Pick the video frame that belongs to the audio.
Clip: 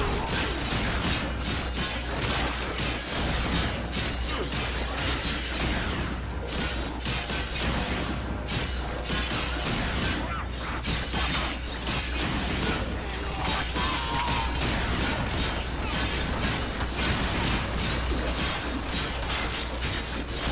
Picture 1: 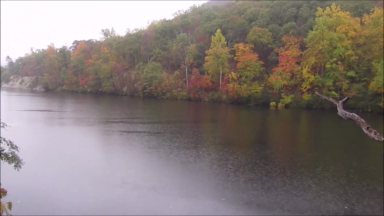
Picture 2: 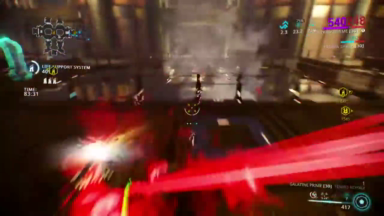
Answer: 2